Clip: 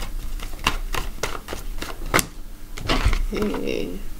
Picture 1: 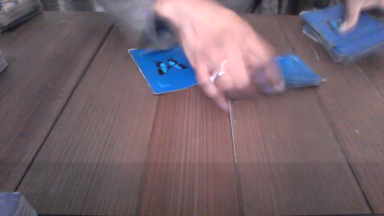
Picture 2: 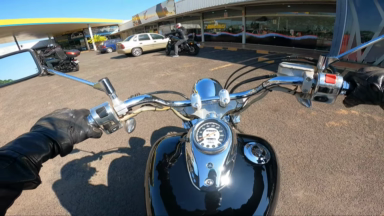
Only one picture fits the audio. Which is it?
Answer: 1